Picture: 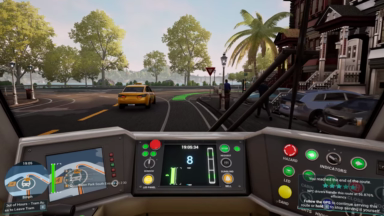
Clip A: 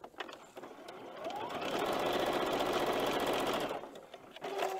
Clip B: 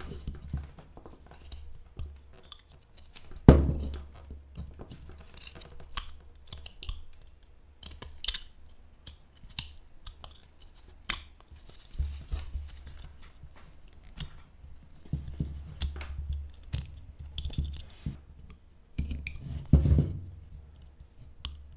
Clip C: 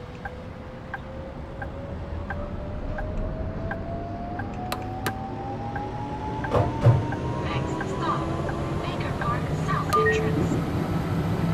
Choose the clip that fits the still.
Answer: C